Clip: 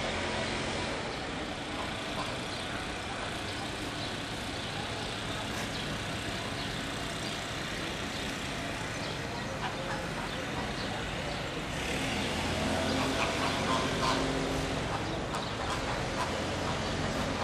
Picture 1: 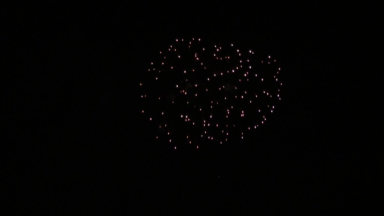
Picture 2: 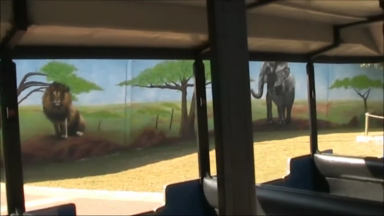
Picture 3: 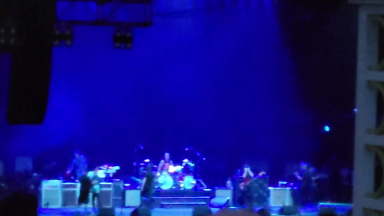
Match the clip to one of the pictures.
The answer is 2